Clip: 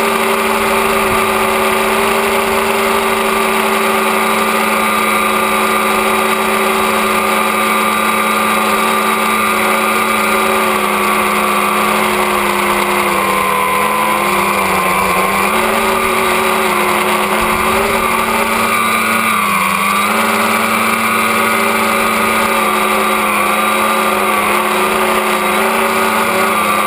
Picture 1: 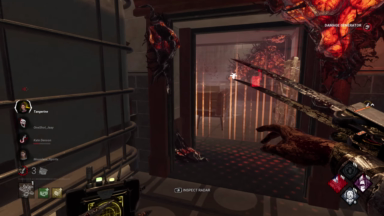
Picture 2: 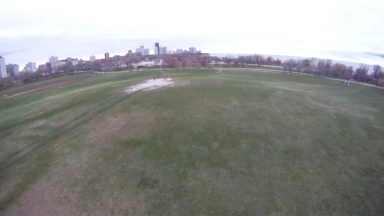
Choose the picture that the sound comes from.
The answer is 2